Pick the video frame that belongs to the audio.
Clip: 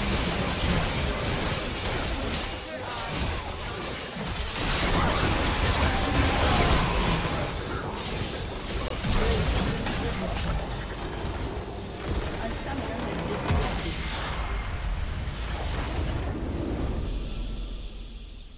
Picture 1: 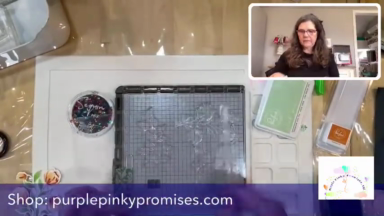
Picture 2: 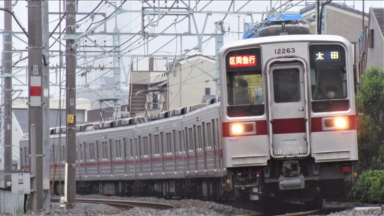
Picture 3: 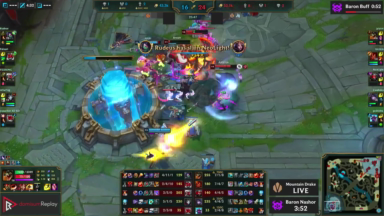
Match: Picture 3